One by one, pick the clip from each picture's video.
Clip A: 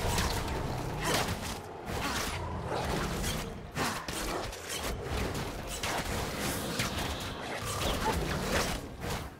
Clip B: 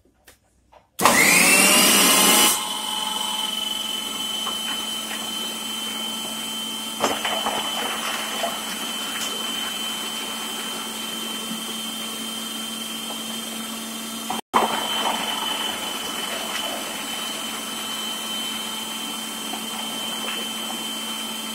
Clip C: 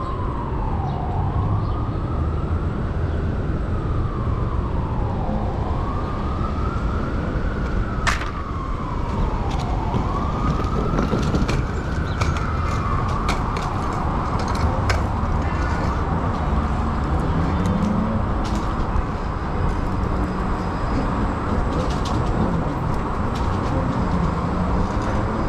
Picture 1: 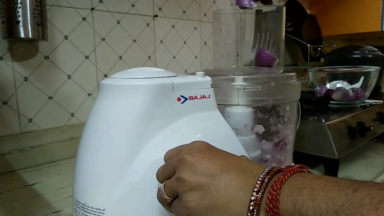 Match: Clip B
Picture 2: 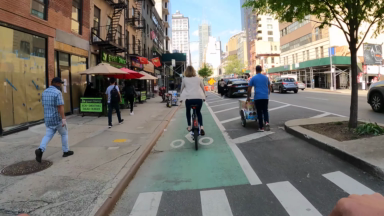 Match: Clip C